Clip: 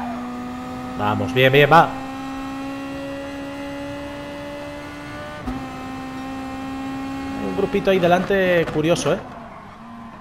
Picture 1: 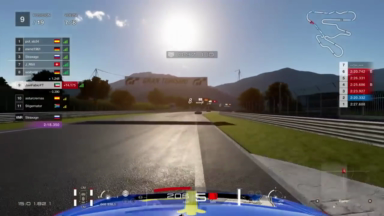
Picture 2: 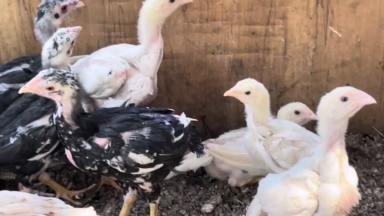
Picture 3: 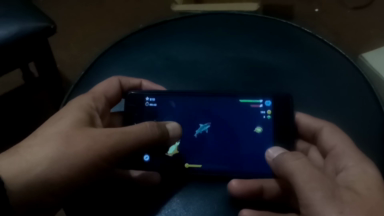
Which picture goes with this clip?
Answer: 1